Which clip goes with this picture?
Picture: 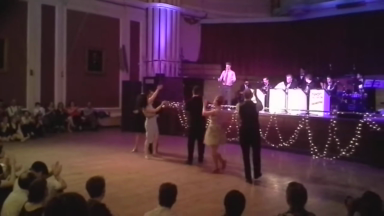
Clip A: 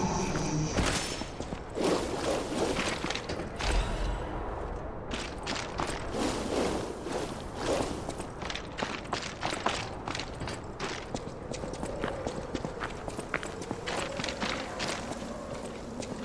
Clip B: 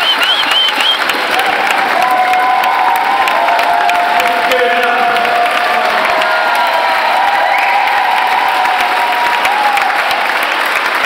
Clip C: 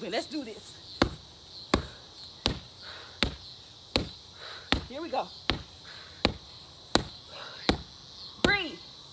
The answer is B